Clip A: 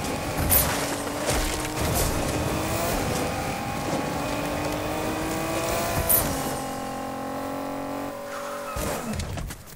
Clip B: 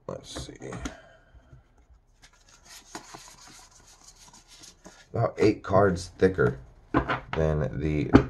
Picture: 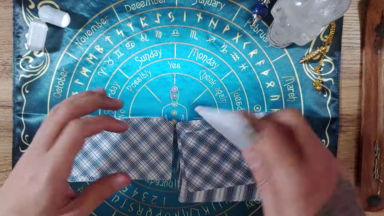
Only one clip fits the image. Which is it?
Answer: B